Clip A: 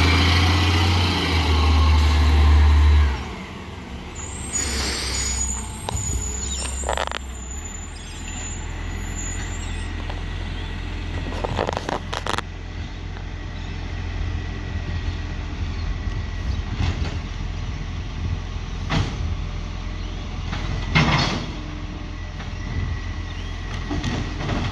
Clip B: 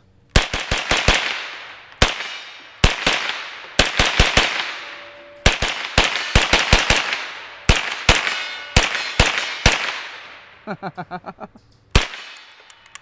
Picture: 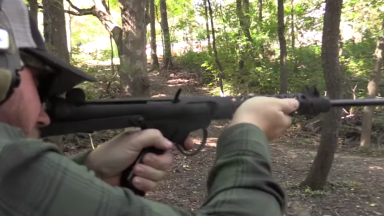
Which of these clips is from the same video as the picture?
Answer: B